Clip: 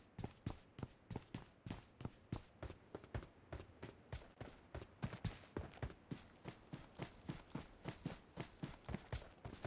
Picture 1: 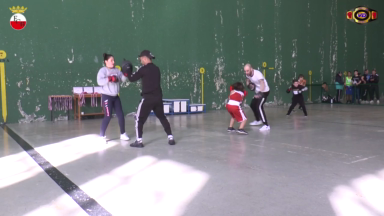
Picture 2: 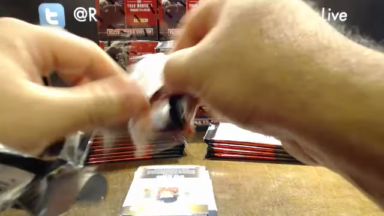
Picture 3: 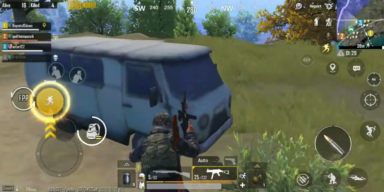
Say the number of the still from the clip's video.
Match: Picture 3